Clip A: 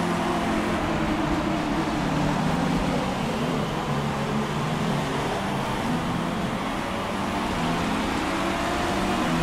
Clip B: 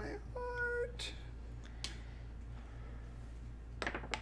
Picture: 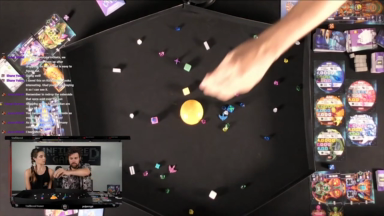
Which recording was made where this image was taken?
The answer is B